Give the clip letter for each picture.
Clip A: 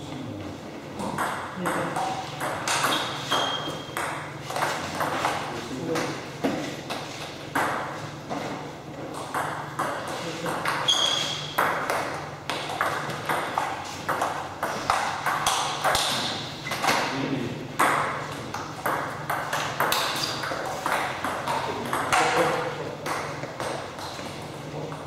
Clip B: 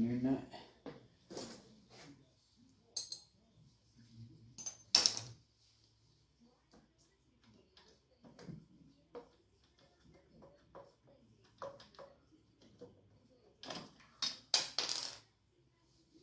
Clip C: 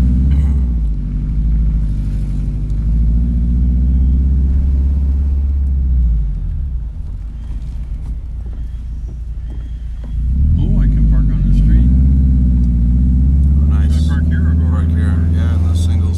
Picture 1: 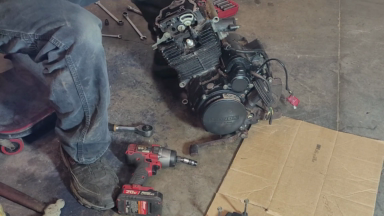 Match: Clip B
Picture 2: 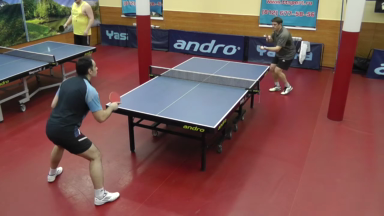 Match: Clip A